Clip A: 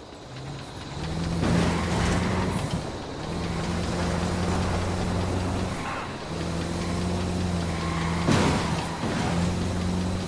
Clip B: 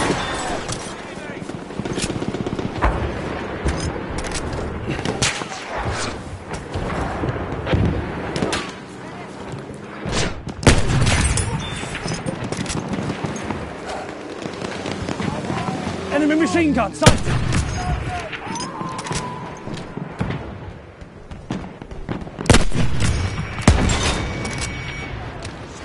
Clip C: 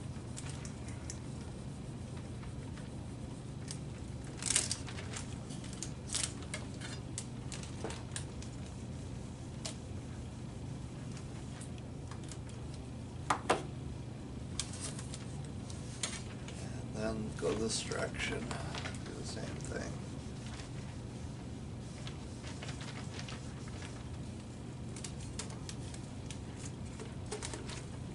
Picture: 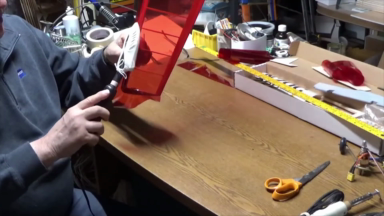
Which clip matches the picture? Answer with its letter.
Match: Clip C